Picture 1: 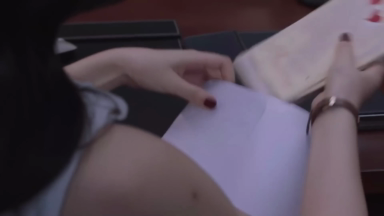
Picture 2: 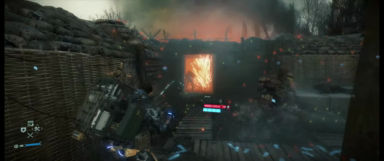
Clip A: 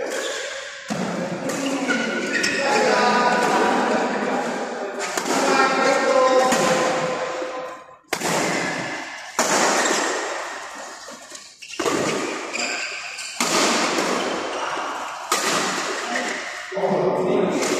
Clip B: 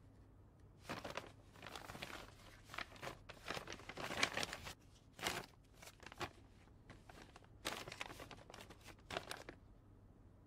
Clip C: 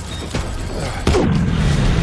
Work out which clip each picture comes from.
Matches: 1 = B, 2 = C